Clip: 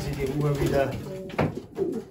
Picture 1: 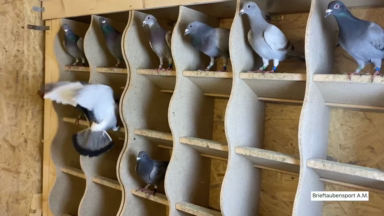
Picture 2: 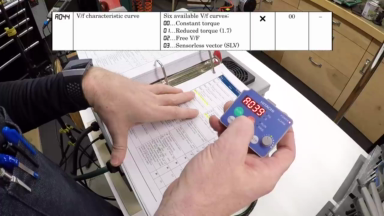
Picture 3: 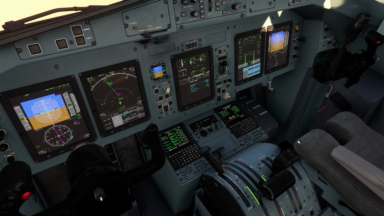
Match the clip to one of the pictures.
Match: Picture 1